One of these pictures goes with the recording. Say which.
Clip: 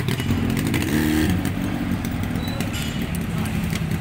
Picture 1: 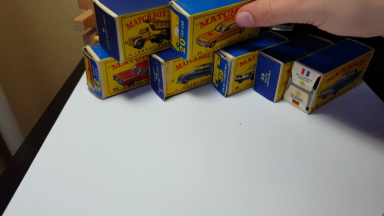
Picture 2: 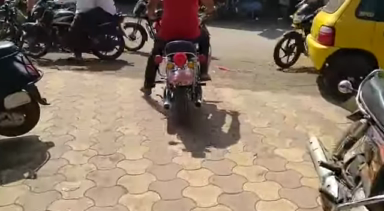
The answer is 2